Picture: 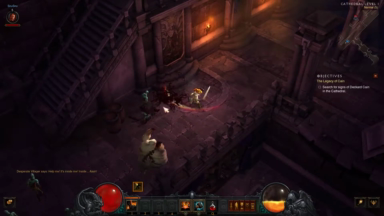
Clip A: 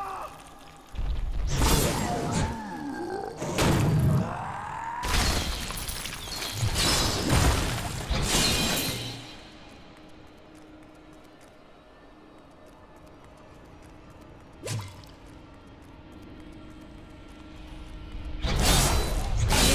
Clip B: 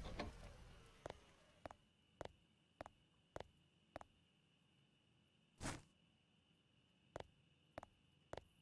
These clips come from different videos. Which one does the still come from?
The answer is A